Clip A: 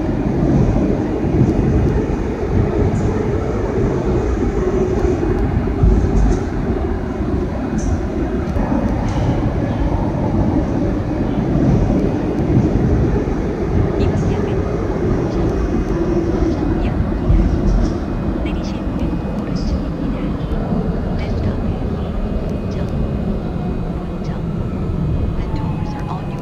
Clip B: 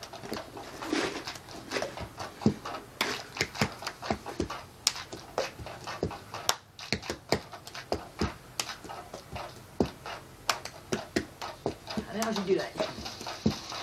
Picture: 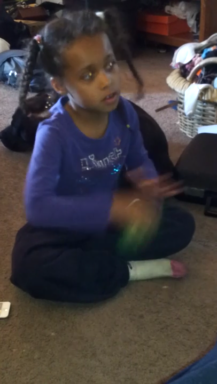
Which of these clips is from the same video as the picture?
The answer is B